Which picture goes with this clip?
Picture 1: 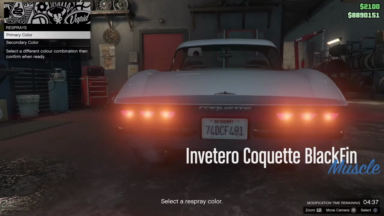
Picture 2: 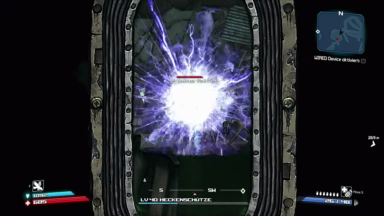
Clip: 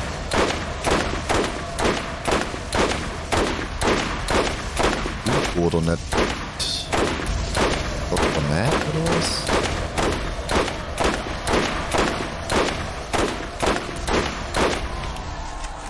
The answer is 2